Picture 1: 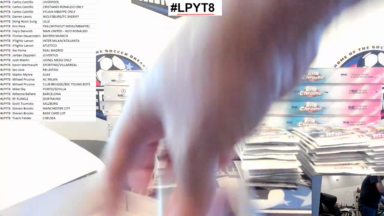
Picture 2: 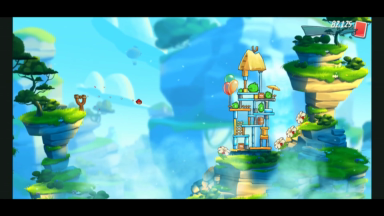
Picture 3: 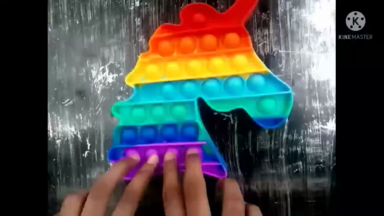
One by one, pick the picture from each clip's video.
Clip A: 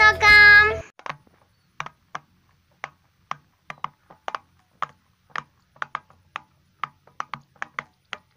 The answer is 3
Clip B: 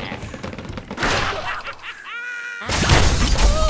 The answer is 2